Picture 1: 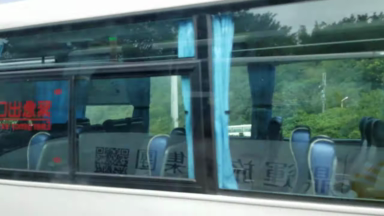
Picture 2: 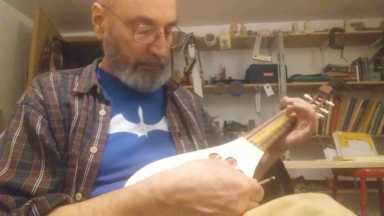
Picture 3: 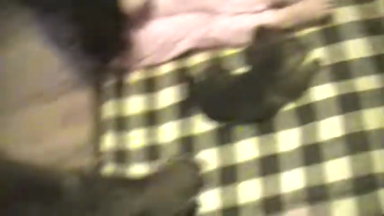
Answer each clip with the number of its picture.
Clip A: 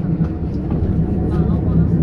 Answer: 1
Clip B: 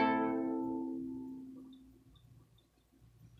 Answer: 2